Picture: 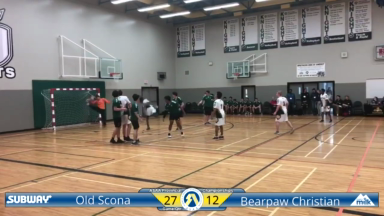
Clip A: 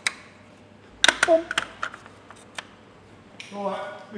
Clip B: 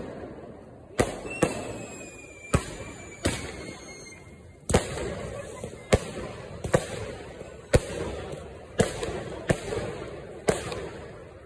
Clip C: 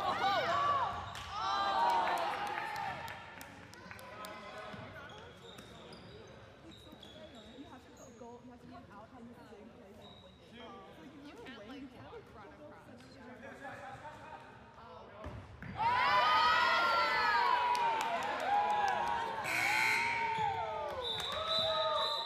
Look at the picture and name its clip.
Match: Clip C